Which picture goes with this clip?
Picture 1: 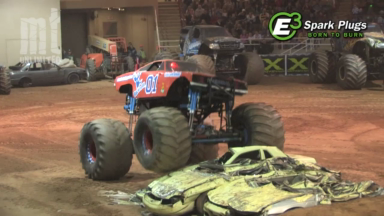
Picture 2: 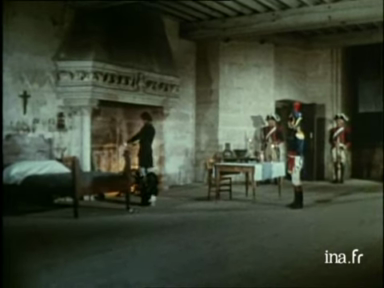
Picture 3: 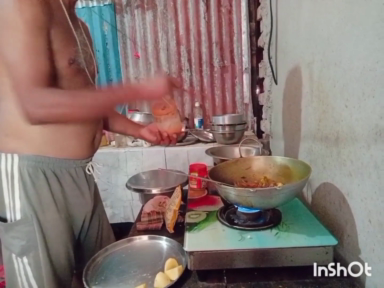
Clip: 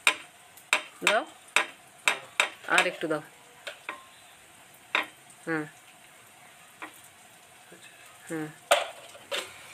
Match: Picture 3